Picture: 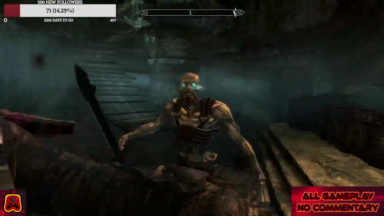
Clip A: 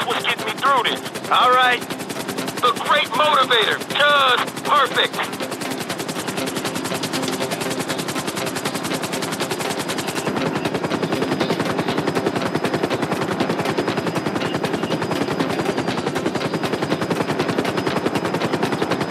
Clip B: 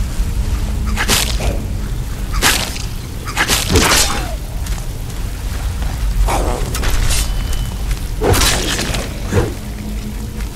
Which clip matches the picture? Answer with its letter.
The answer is B